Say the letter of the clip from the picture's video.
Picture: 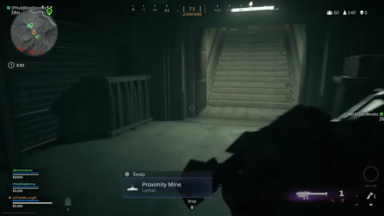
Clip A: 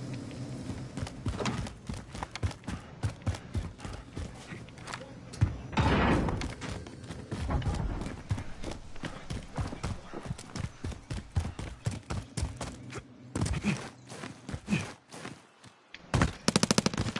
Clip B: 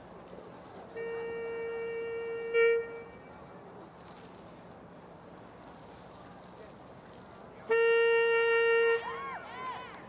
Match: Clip A